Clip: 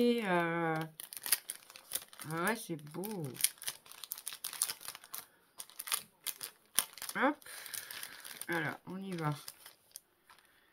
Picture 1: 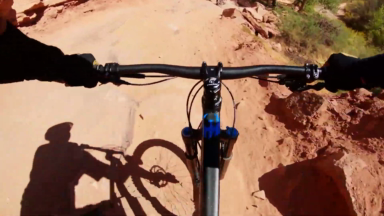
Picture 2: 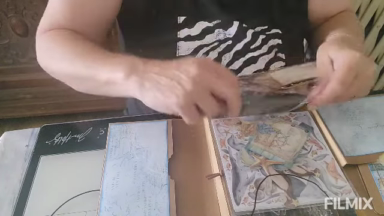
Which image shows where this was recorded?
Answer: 2